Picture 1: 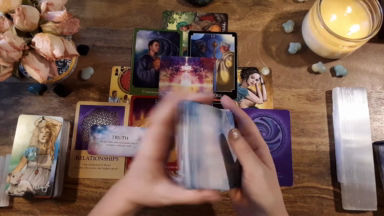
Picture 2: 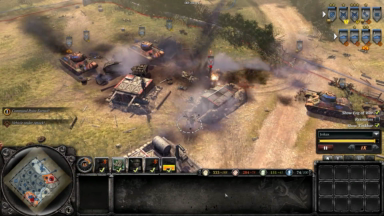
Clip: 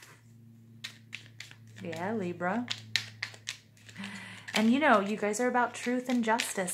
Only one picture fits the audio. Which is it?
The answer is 1